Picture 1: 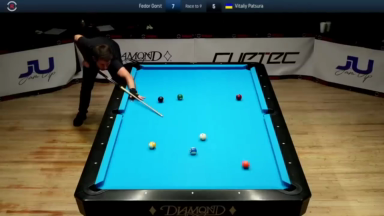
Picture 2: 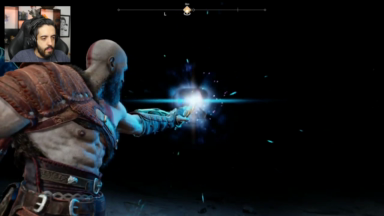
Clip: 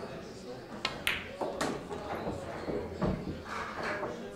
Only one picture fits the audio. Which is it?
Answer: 1